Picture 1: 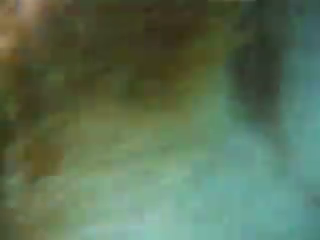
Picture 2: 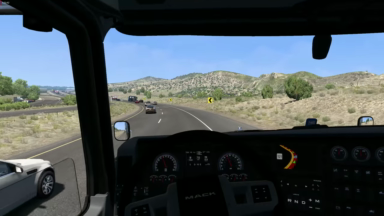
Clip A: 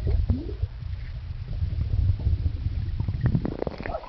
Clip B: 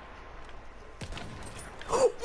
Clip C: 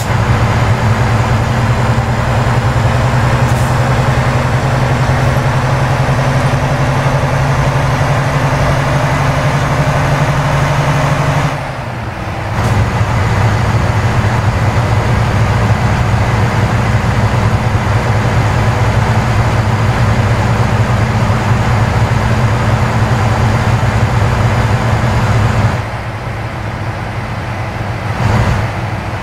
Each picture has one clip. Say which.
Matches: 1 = A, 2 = C